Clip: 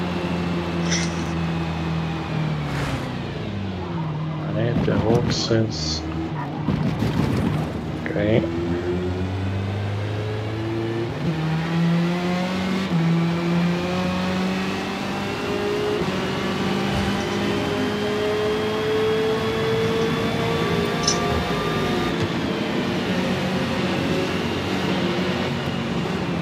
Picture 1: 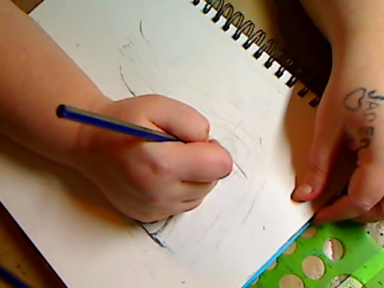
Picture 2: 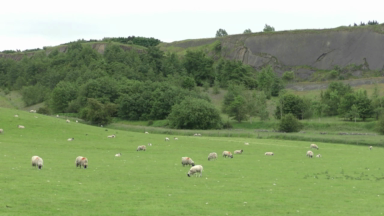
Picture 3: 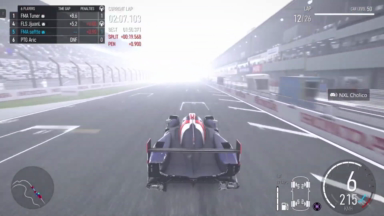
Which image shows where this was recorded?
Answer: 3